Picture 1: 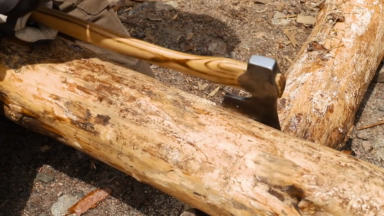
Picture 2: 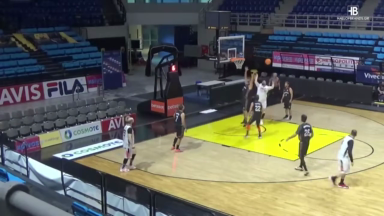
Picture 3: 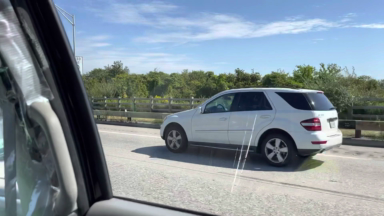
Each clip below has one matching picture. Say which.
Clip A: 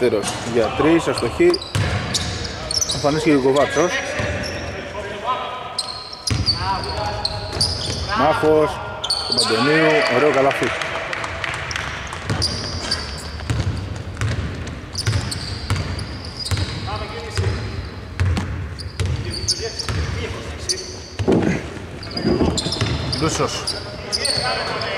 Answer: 2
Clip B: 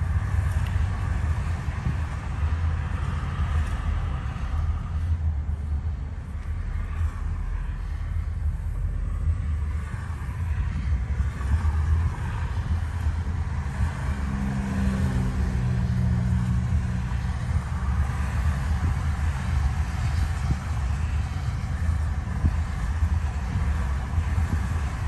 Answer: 3